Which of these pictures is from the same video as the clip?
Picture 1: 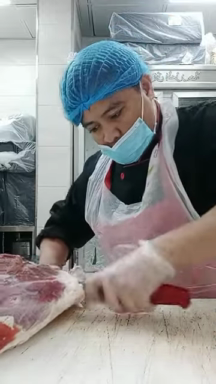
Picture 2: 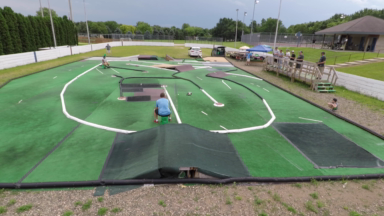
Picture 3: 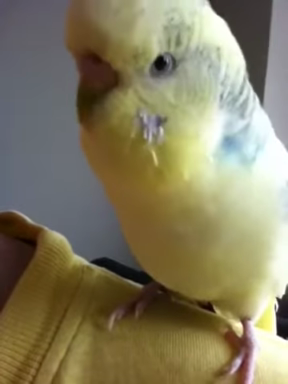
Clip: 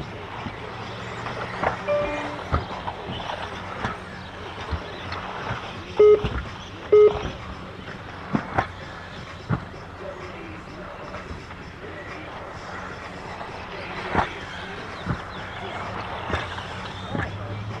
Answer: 2